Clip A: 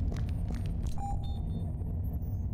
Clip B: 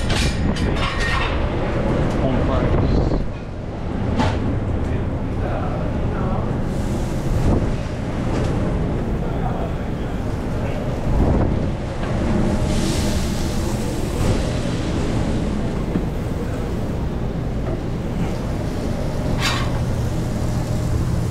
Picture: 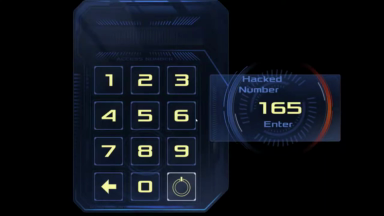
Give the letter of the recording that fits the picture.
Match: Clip A